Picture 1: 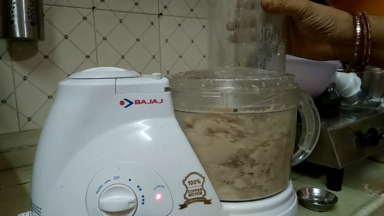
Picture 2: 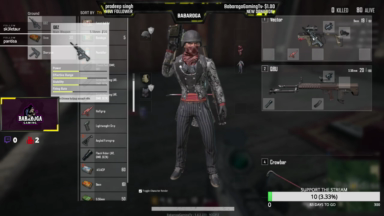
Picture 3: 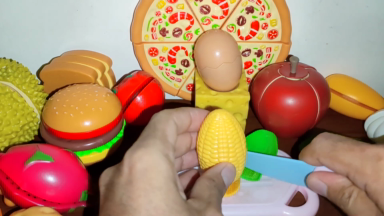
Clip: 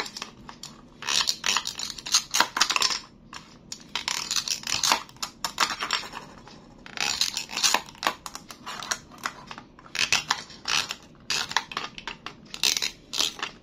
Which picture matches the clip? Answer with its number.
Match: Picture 3